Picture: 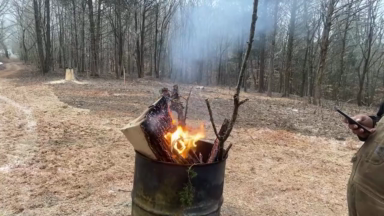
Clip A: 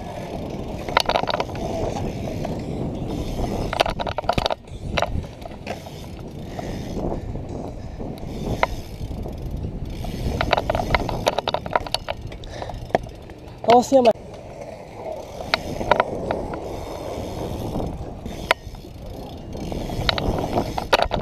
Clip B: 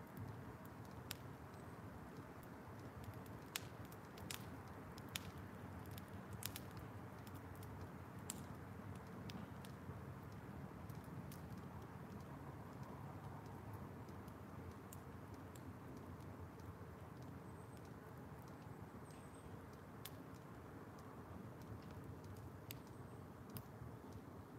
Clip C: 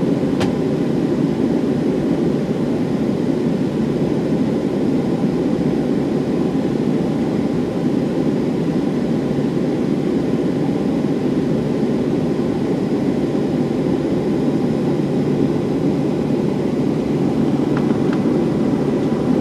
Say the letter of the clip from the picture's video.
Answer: B